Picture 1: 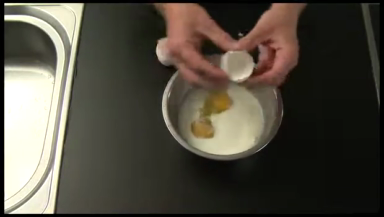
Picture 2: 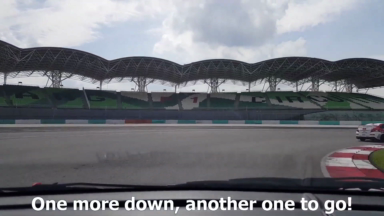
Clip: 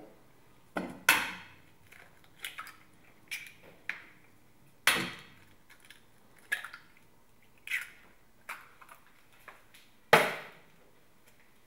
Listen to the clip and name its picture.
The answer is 1